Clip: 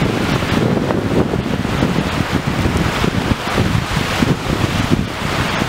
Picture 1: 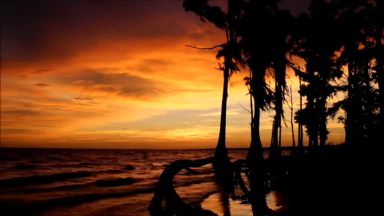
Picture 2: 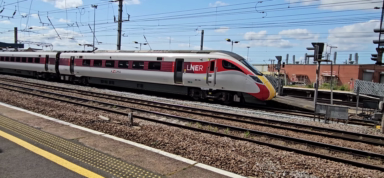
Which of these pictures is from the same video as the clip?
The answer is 1